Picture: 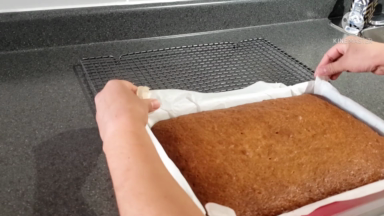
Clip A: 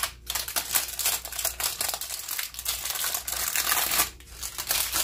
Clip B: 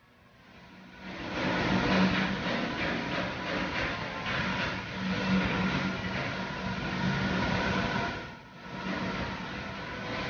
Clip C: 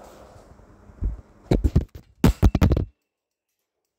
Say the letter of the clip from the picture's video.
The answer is A